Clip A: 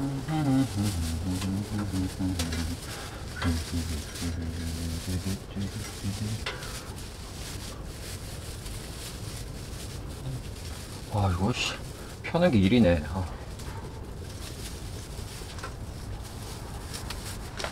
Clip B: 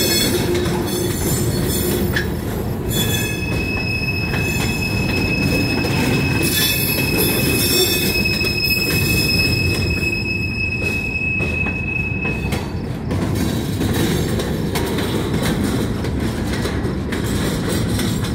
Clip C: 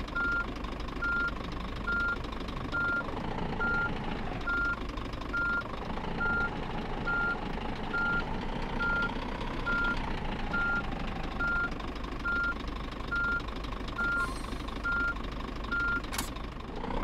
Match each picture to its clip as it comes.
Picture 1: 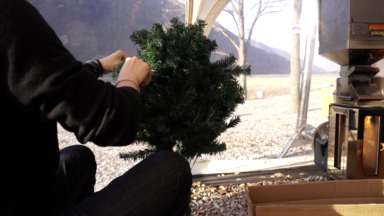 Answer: A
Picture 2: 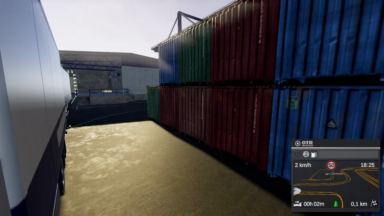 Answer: C